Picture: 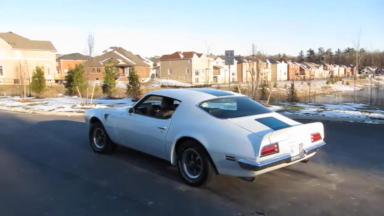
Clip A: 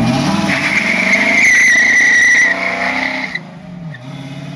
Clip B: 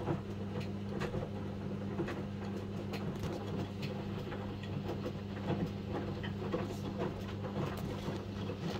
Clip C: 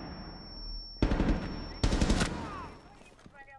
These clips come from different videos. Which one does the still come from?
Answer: A